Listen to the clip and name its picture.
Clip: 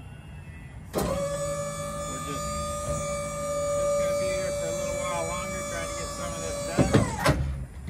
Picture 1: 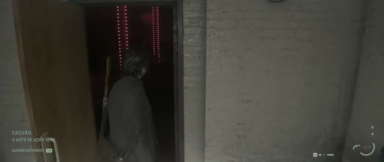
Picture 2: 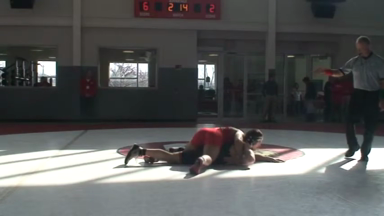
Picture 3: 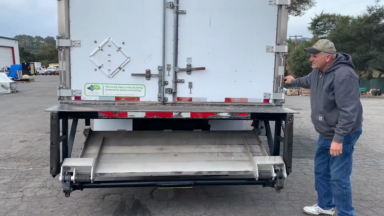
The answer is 3